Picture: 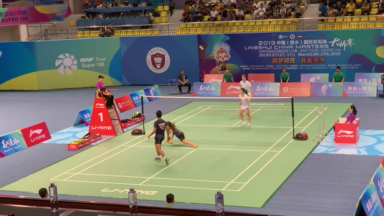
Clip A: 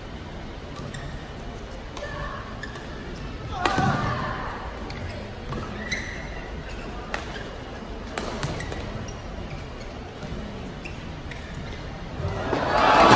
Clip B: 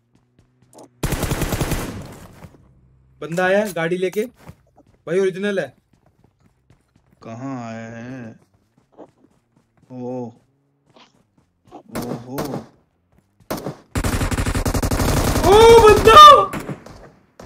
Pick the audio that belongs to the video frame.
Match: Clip A